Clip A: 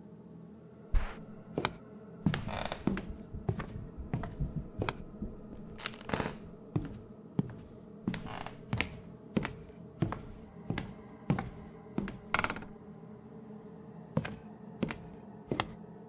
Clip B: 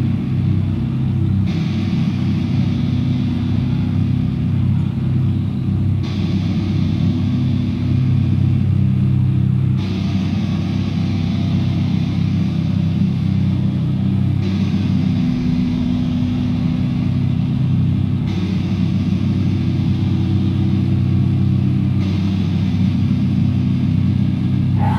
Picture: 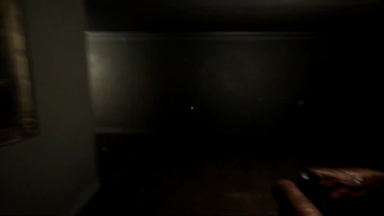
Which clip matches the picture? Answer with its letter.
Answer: A